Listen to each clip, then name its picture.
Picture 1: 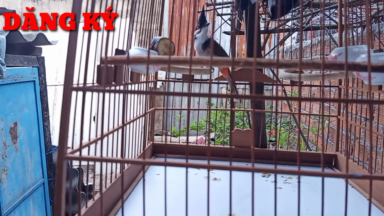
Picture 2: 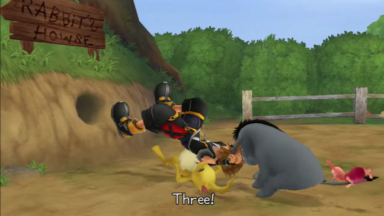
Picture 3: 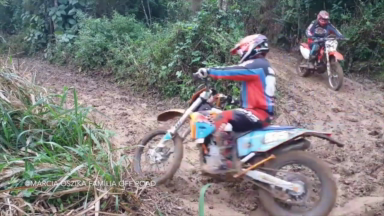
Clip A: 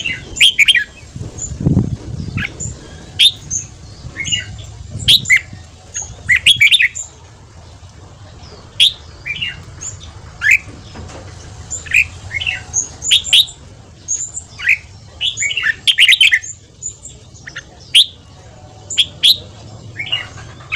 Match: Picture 1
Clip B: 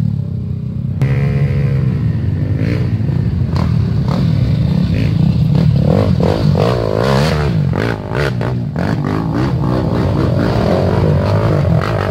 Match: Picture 3